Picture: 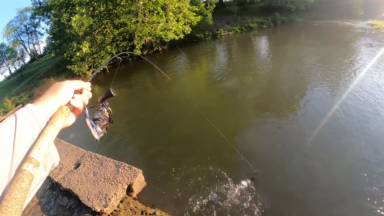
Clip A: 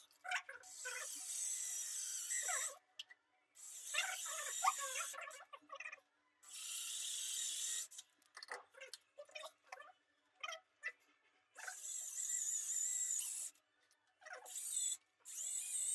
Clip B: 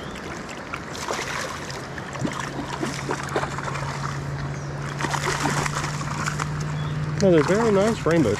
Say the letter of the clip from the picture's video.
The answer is B